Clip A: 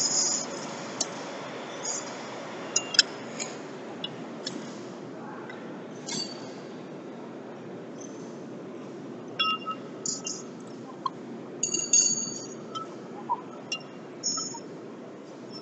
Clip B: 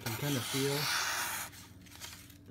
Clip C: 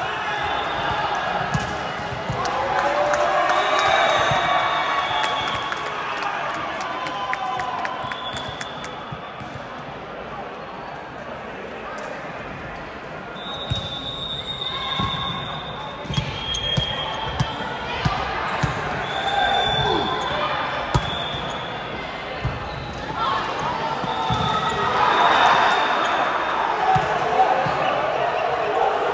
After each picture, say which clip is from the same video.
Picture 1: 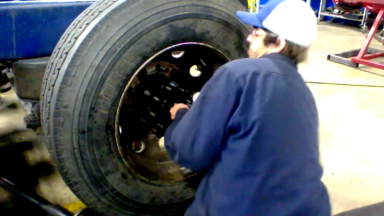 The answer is A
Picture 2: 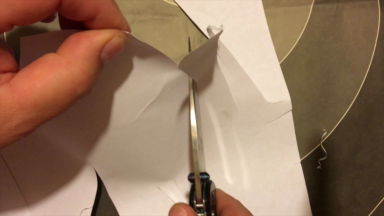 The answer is B